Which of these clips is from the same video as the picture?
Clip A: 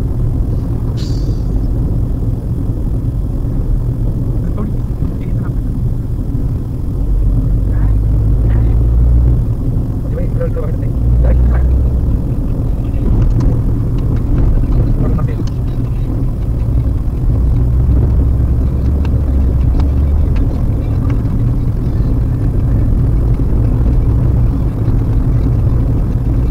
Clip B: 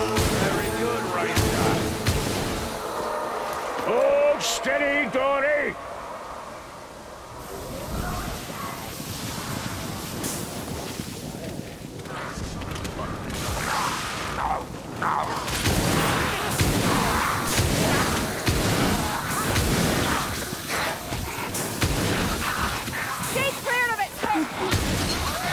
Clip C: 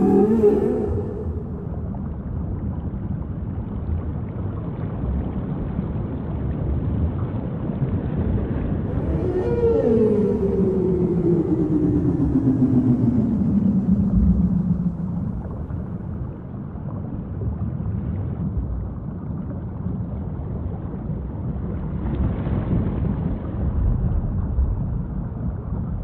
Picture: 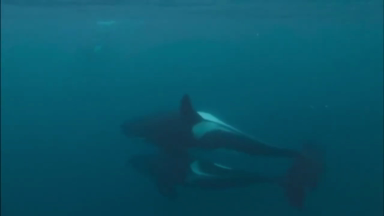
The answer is C